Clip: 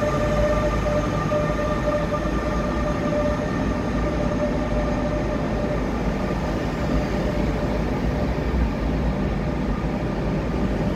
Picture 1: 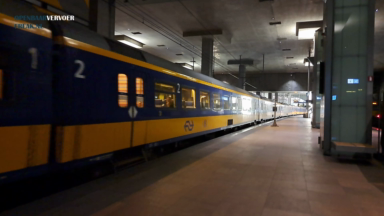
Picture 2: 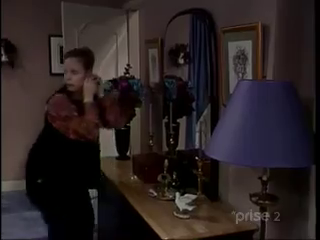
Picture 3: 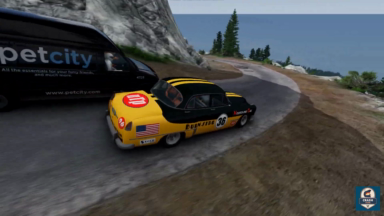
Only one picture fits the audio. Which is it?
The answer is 1